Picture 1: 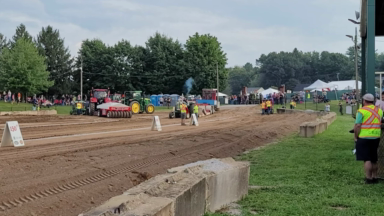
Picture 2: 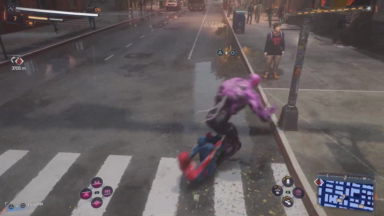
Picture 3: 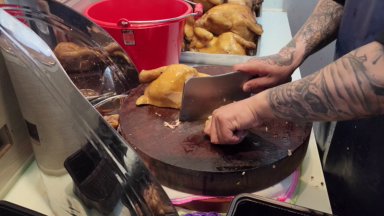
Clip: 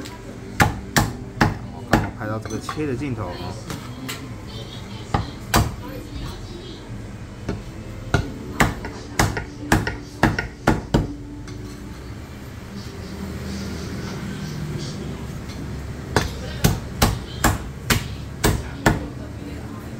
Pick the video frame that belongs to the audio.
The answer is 3